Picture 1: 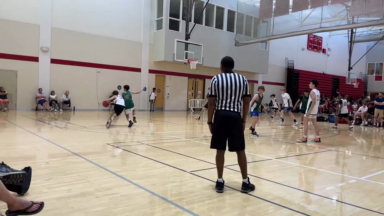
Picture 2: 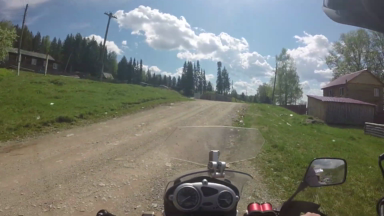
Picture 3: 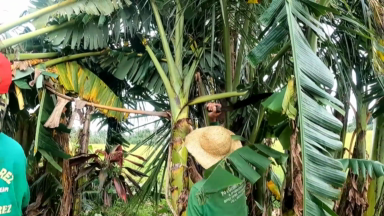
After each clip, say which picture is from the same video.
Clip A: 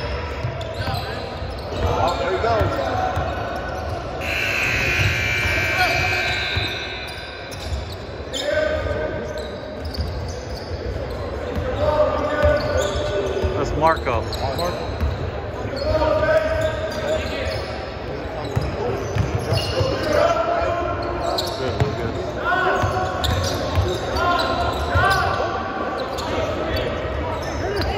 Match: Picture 1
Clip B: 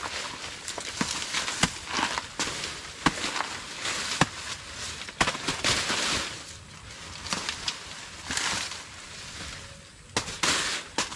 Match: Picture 3